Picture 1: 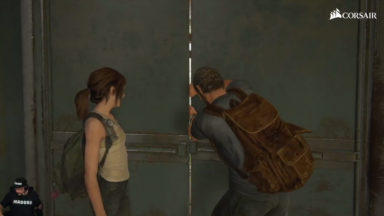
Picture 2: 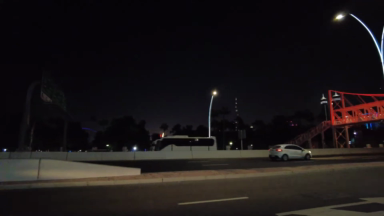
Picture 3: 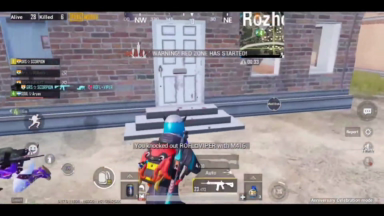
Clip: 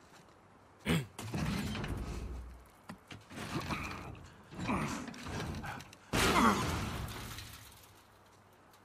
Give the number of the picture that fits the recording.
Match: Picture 1